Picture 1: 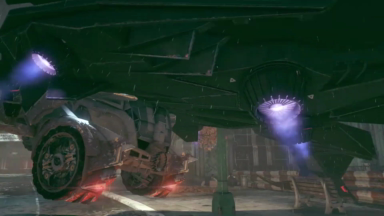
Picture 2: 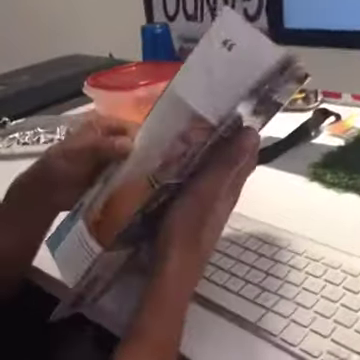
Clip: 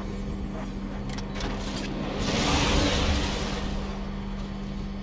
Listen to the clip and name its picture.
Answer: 1